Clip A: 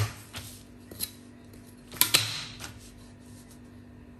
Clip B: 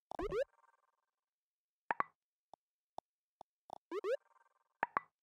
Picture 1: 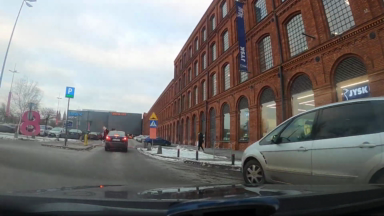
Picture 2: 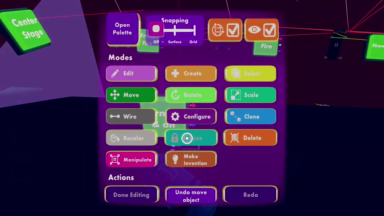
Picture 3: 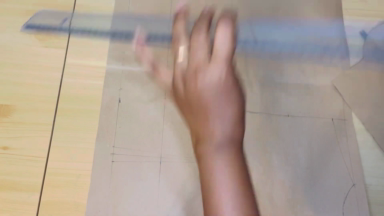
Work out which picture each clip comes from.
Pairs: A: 3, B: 2